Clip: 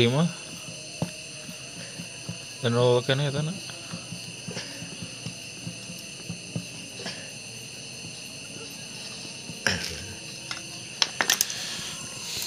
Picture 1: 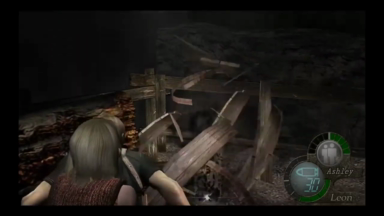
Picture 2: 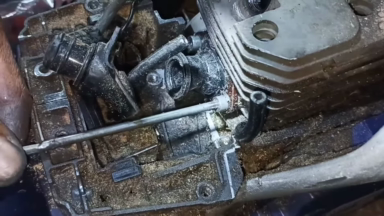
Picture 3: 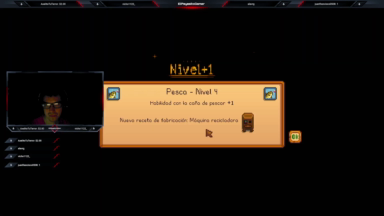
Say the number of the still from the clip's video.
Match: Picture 2